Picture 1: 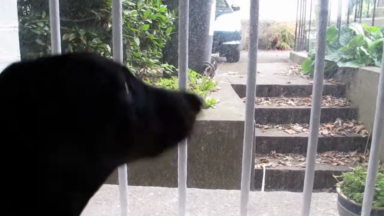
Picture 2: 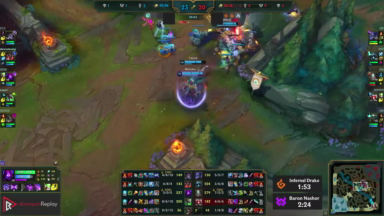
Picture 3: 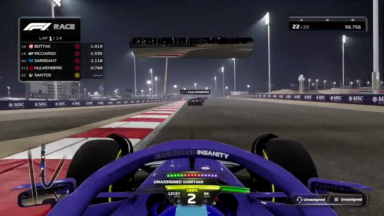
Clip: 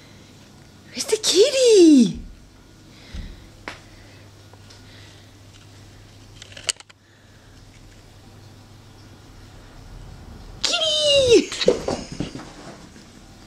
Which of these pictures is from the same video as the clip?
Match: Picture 1